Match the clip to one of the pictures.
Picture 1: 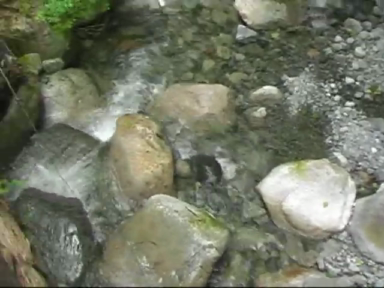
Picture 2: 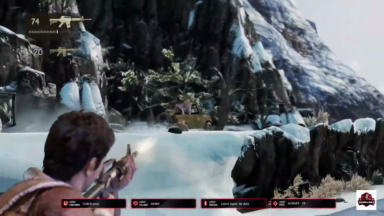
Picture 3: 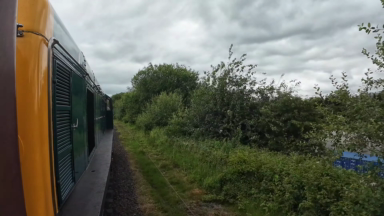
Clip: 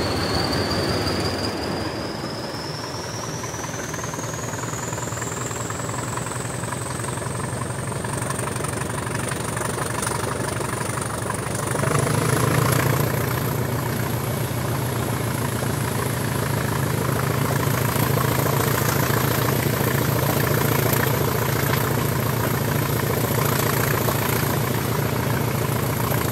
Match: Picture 3